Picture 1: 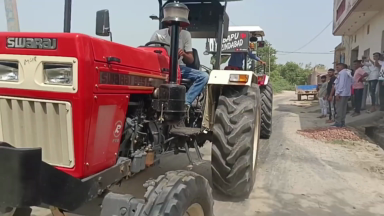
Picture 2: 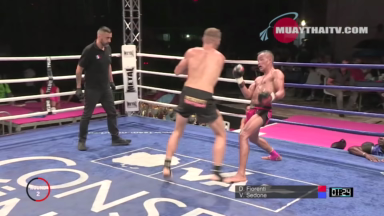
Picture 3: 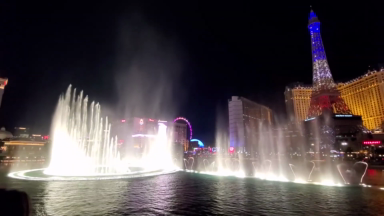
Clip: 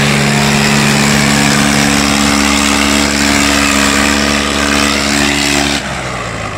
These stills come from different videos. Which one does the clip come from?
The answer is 1